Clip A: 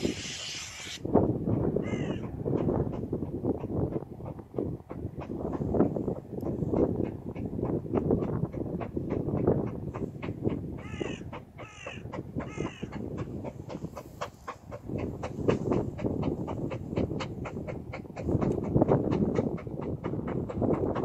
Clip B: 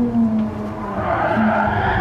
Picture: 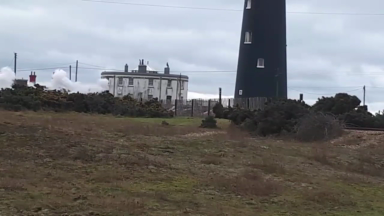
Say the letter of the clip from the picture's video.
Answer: A